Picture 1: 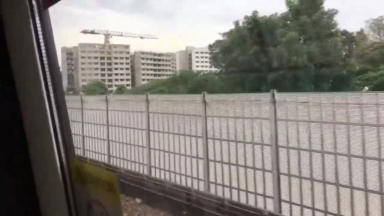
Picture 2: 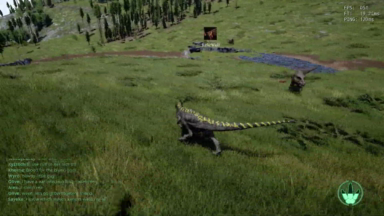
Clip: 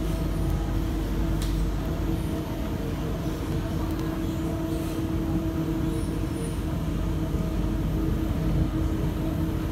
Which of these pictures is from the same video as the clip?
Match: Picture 1